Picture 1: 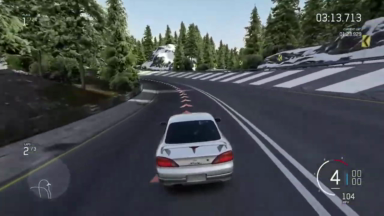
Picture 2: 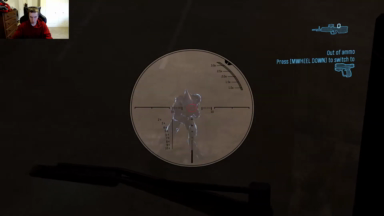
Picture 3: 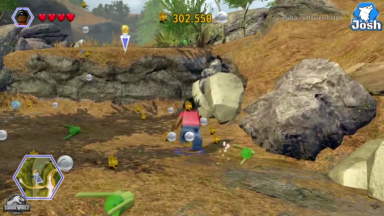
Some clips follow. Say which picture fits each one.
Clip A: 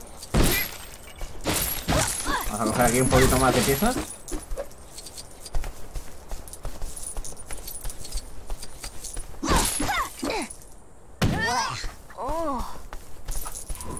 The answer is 3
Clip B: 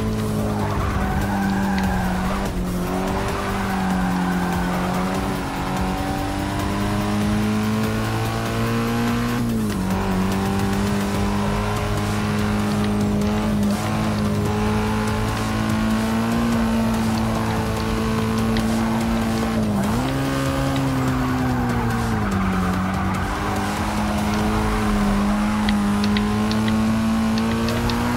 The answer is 1